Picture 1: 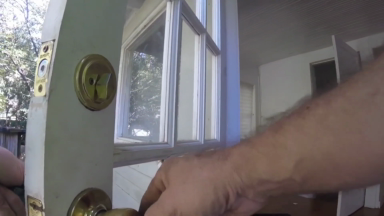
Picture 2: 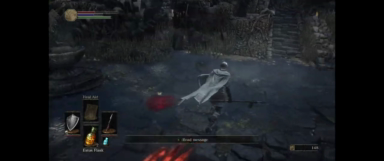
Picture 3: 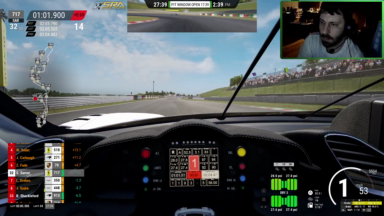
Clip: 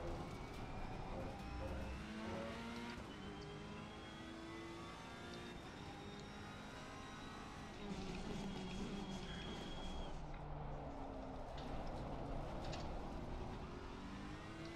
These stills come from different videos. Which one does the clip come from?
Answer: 3